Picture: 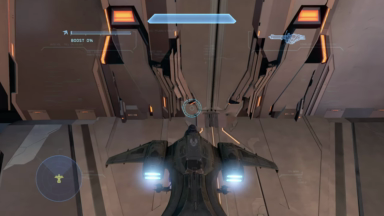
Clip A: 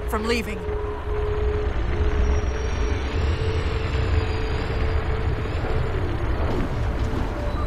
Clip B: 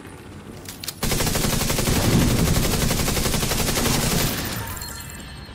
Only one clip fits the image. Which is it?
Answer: A